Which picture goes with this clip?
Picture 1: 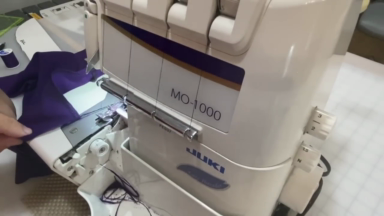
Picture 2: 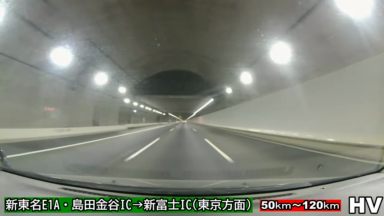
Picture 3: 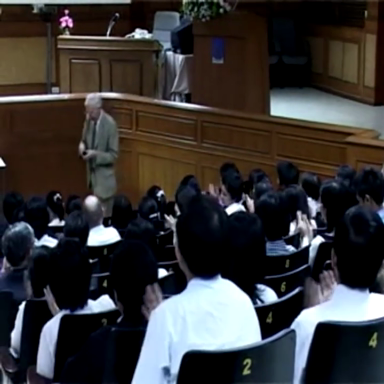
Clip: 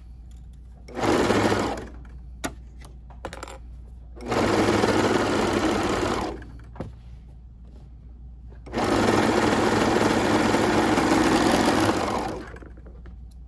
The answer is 1